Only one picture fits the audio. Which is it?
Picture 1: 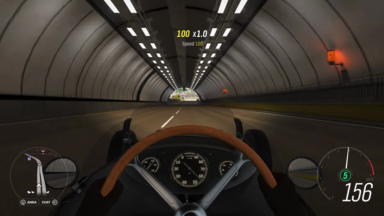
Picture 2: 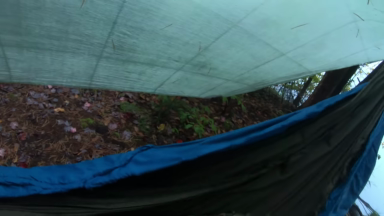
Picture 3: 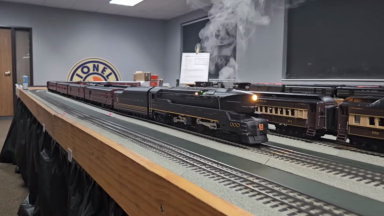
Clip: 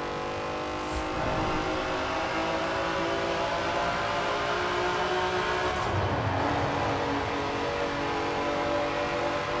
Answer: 1